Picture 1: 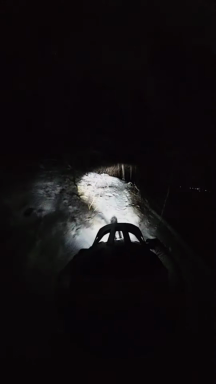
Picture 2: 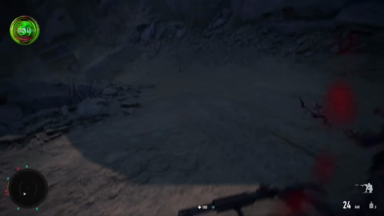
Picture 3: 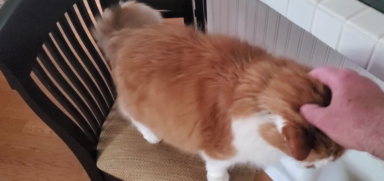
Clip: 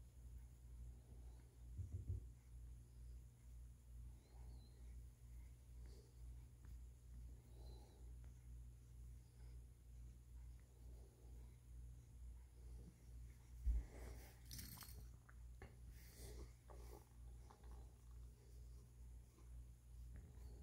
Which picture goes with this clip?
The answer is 3